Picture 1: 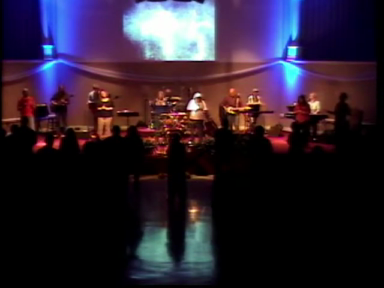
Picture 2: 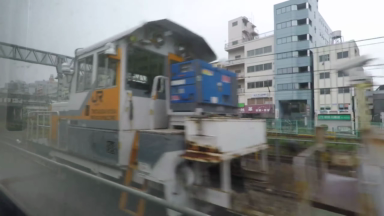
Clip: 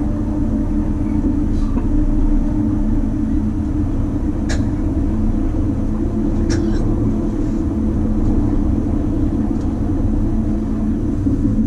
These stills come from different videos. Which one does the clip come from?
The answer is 2